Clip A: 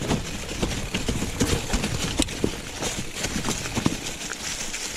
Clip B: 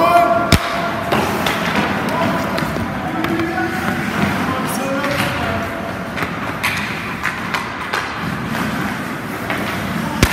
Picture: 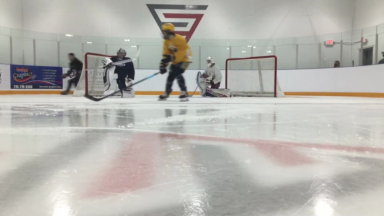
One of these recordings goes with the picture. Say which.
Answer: B